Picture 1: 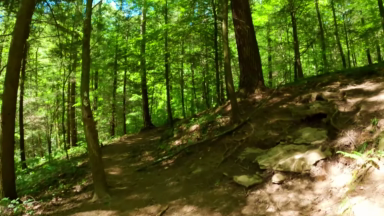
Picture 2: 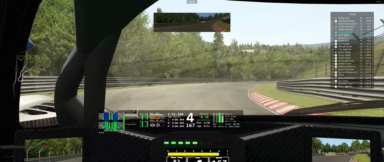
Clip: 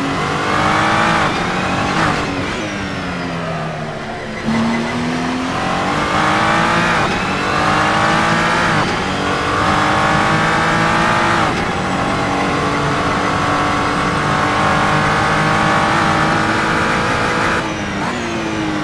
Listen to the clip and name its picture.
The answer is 2